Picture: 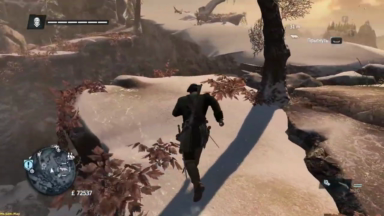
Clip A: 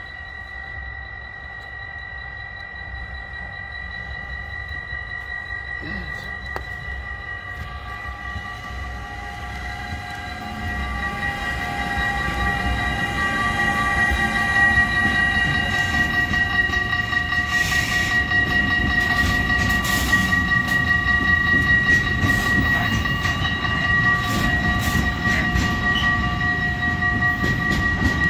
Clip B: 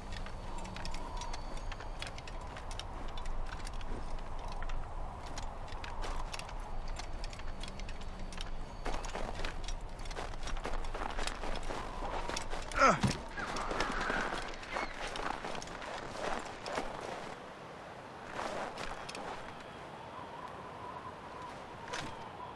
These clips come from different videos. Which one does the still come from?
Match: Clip B